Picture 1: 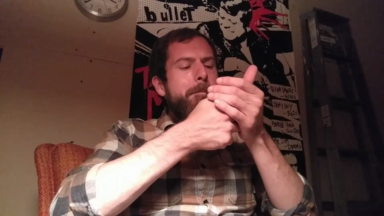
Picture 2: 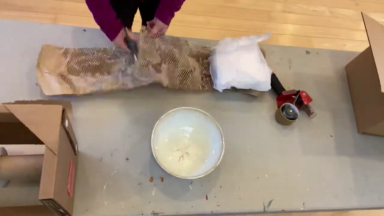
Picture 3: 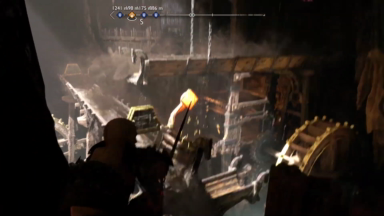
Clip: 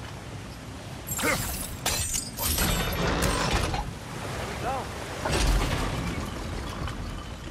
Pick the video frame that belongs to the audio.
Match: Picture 3